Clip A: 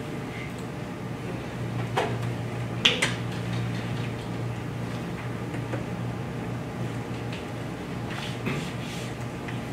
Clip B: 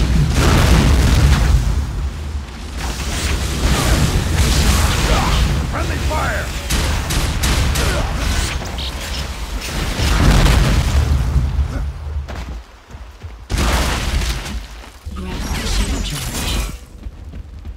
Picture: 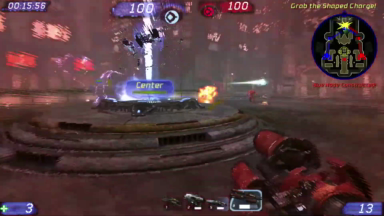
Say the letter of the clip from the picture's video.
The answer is B